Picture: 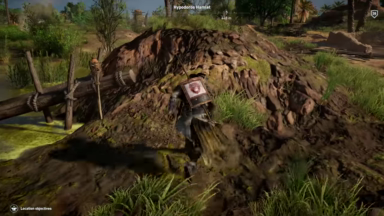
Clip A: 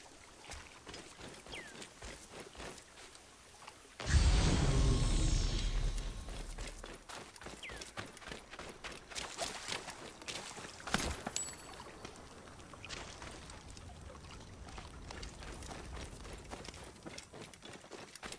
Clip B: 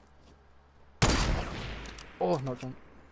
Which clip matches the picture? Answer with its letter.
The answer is A